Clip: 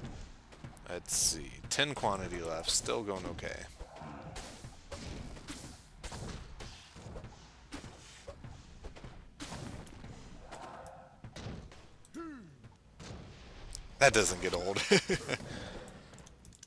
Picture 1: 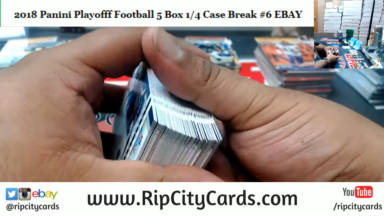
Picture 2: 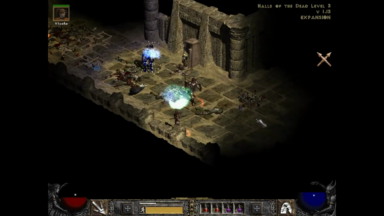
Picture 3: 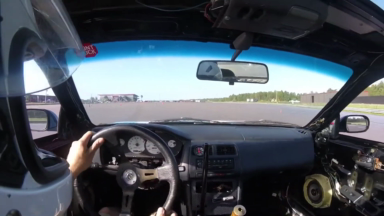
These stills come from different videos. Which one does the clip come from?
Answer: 2